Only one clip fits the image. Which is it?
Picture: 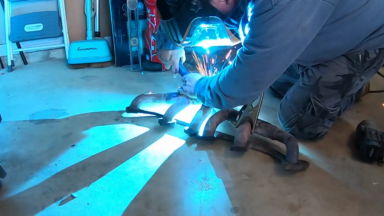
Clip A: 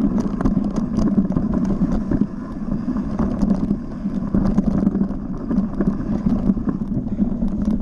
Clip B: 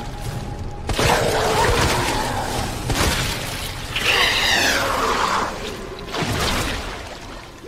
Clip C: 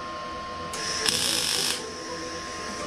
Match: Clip C